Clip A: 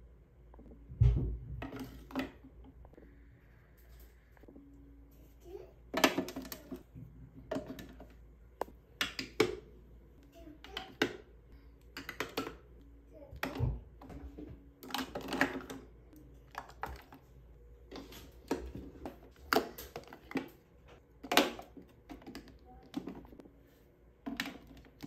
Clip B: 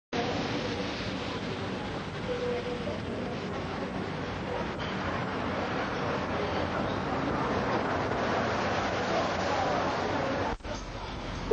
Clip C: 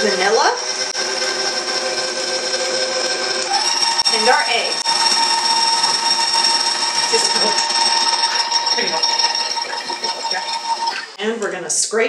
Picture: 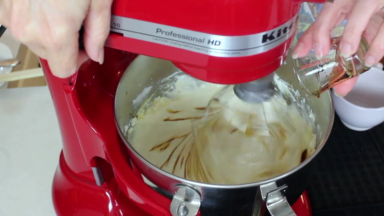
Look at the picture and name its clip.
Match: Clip C